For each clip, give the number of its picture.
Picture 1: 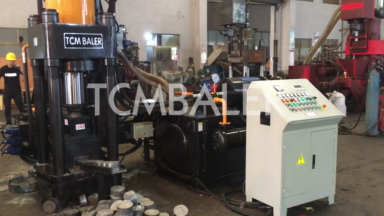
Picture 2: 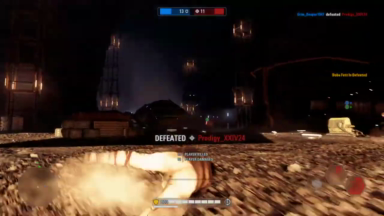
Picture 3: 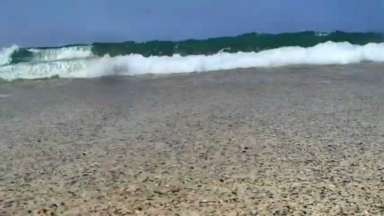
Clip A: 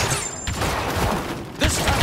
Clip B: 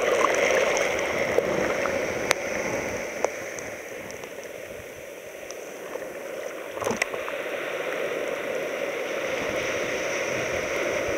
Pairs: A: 2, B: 3